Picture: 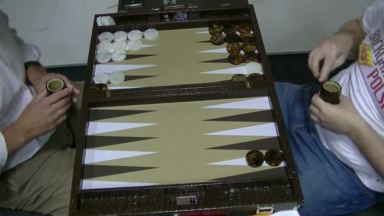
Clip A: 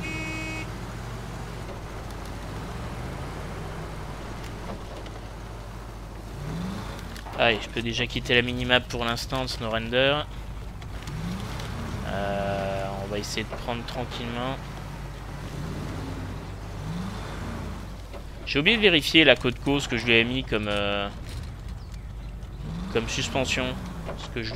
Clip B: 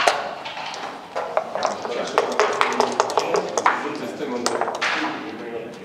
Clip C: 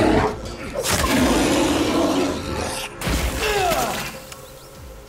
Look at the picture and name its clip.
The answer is B